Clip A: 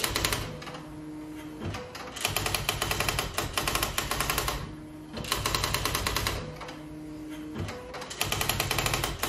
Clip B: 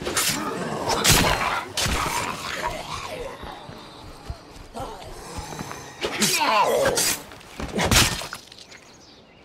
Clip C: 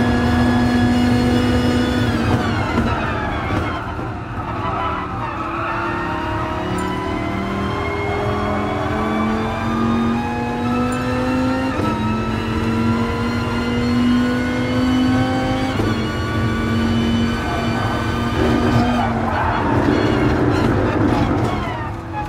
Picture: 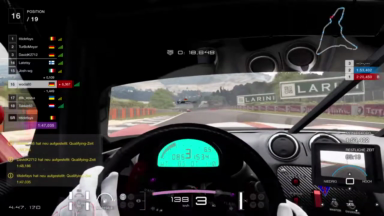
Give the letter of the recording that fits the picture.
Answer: C